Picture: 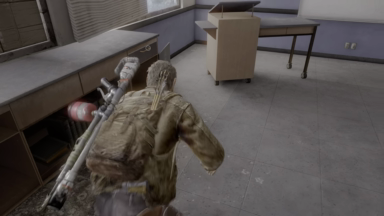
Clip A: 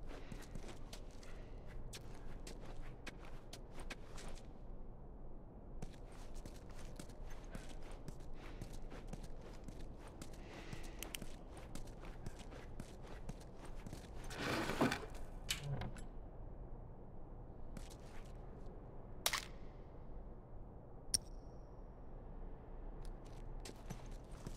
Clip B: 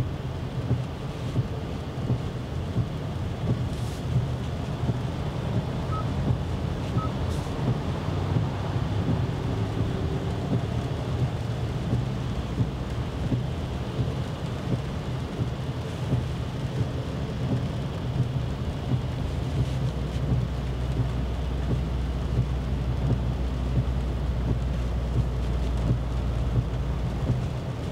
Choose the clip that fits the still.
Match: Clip A